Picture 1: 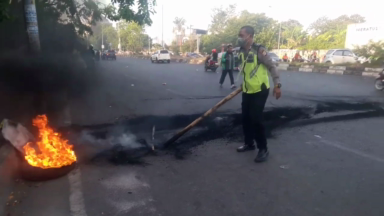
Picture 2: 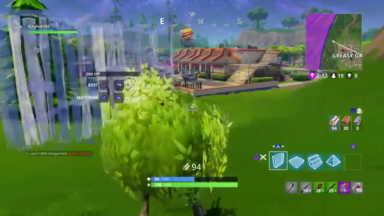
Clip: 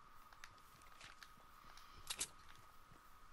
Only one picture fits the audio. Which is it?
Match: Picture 2